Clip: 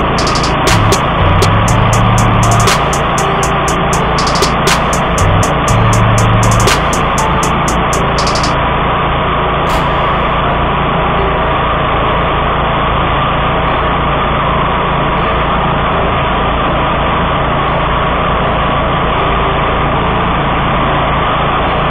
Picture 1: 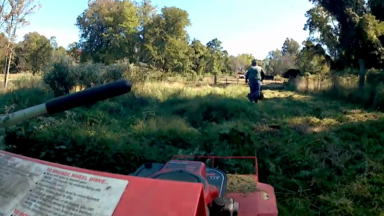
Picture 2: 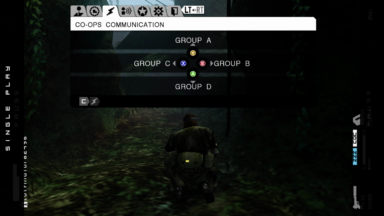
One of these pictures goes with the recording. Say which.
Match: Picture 1